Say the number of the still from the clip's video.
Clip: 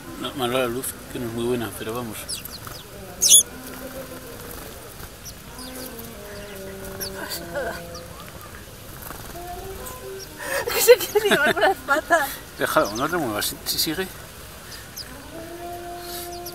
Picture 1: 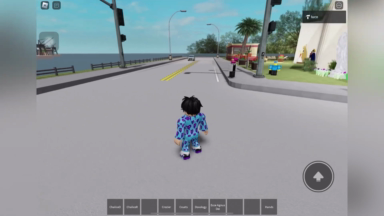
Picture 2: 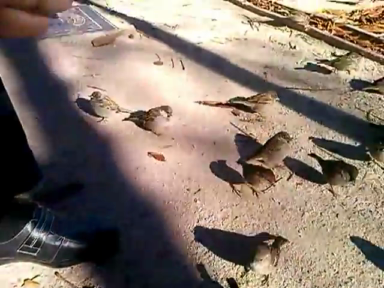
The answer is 2